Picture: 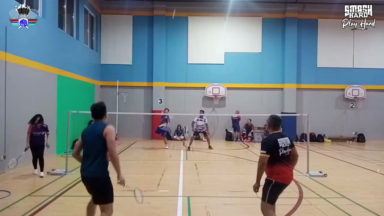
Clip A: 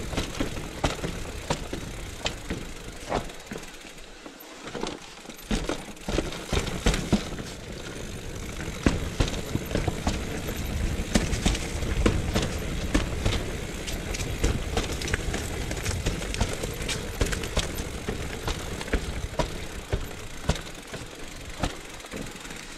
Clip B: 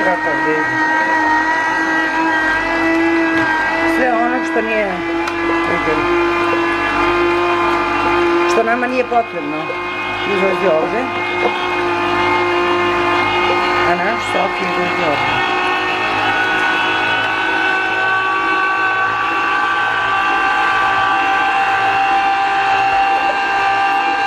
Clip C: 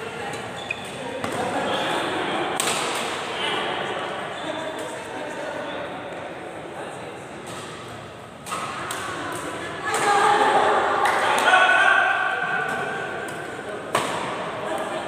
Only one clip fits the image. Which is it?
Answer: C